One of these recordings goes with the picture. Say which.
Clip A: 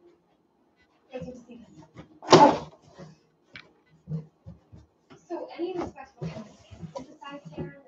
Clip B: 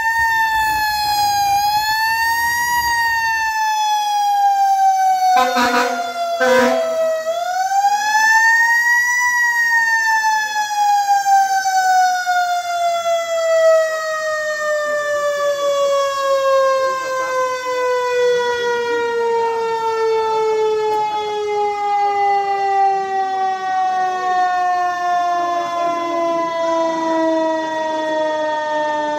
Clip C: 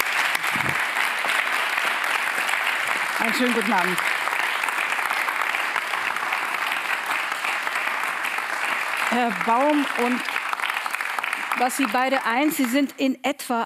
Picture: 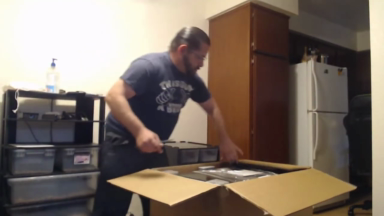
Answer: A